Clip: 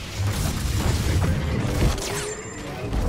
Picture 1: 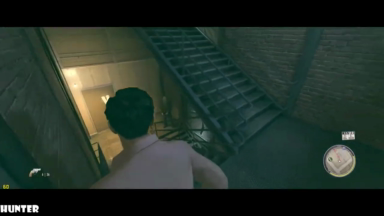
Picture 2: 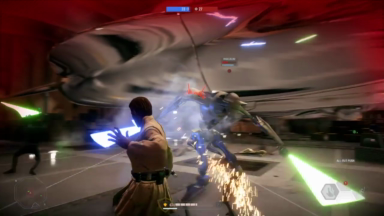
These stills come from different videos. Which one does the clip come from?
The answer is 2